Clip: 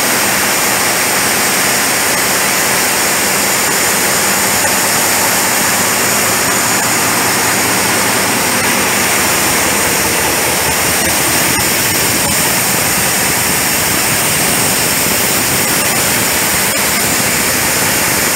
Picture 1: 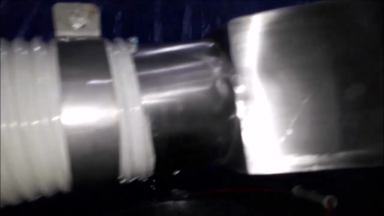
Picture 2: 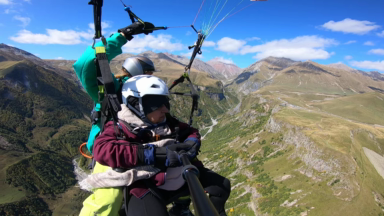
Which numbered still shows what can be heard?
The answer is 1